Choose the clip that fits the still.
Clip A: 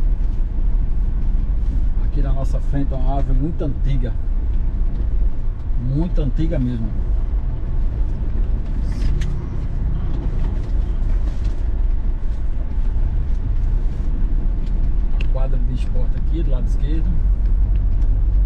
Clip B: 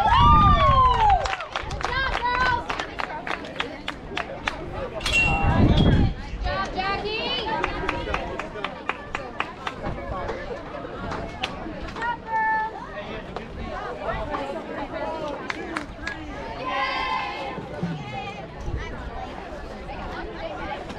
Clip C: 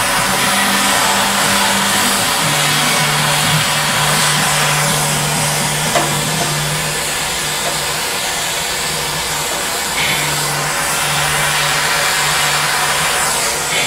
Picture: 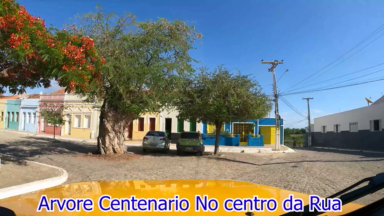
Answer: A